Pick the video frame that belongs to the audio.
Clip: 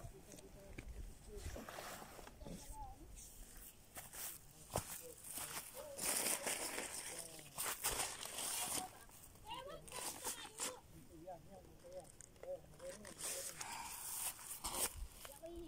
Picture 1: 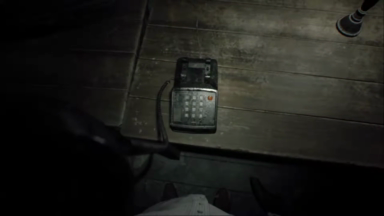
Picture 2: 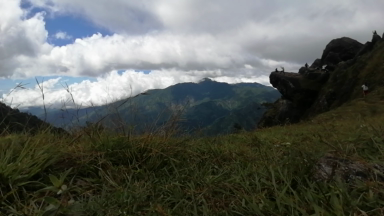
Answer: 2